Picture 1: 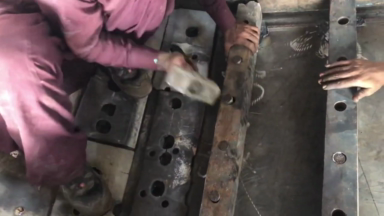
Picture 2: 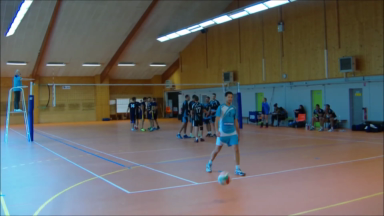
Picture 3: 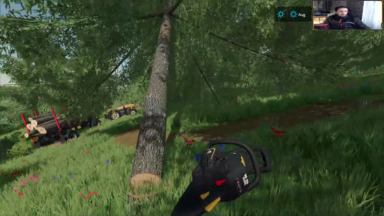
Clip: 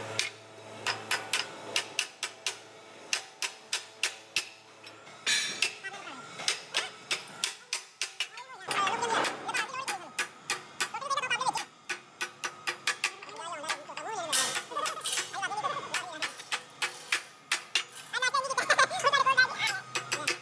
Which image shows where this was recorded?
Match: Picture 1